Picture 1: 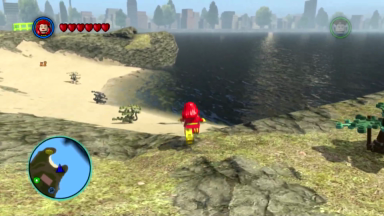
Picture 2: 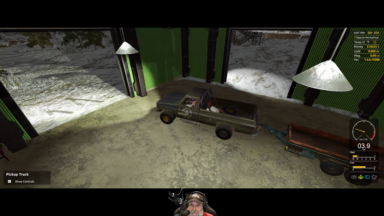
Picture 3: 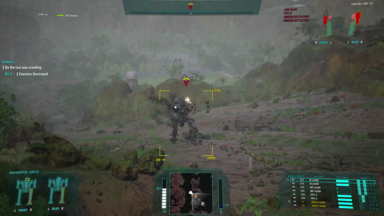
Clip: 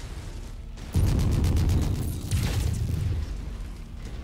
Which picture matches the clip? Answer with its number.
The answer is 3